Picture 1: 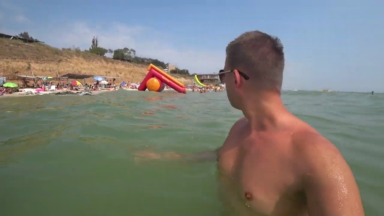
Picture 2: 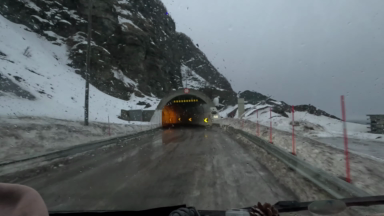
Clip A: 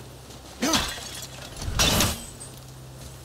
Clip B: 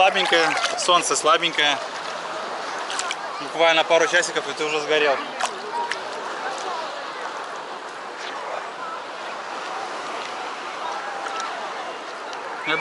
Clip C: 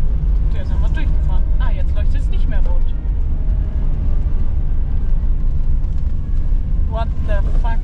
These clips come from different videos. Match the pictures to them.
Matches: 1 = B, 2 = C